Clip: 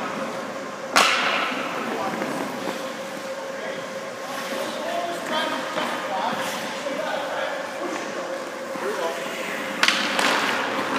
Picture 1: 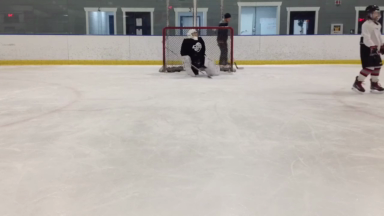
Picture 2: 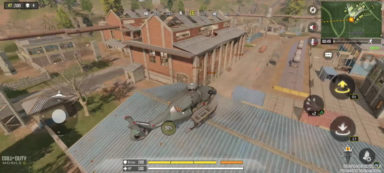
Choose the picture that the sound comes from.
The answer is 1